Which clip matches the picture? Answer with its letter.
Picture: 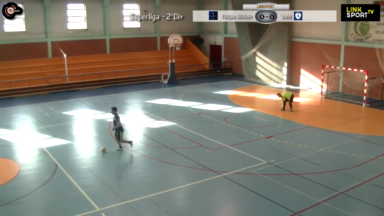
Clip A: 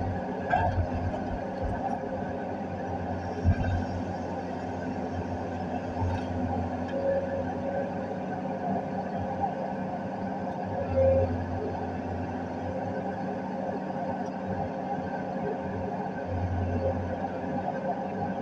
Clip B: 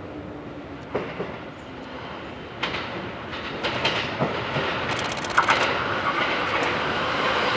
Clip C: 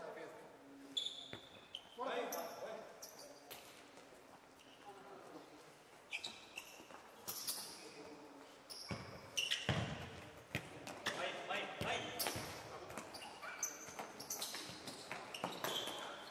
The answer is C